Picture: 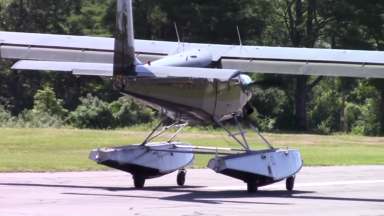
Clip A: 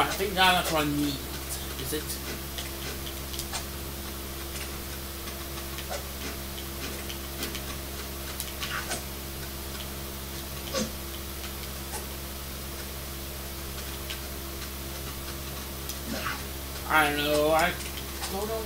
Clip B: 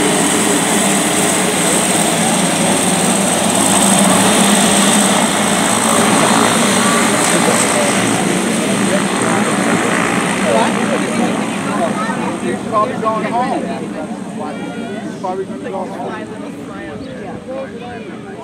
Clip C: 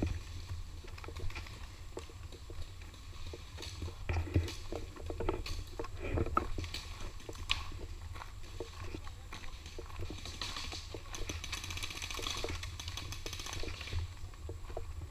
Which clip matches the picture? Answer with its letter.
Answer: B